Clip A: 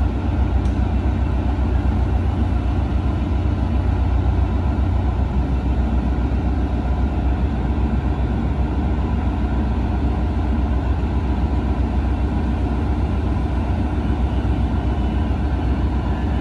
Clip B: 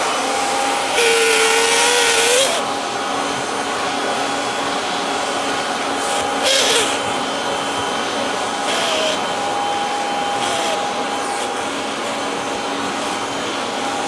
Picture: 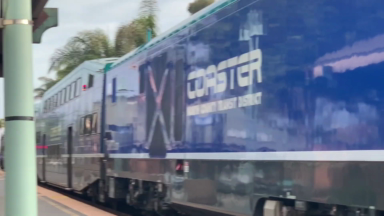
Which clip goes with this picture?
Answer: A